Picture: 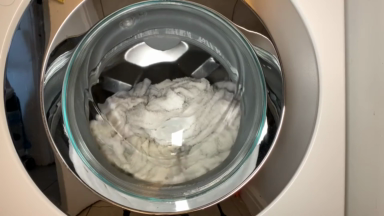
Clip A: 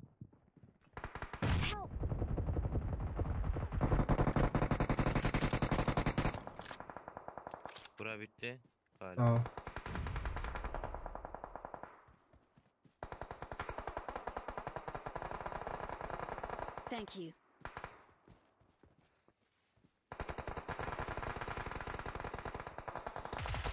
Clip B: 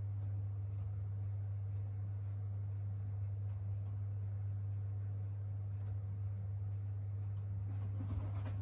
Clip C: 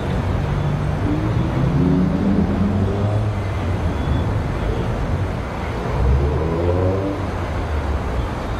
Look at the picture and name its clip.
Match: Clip B